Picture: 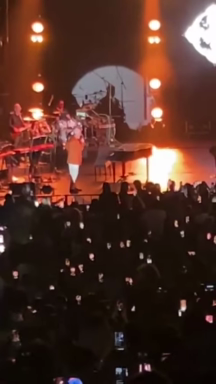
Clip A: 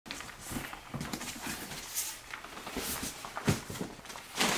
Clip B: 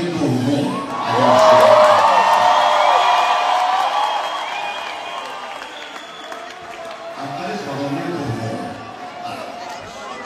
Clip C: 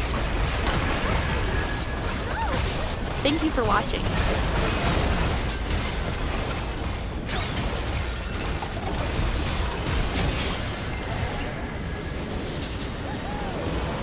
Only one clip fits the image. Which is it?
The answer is B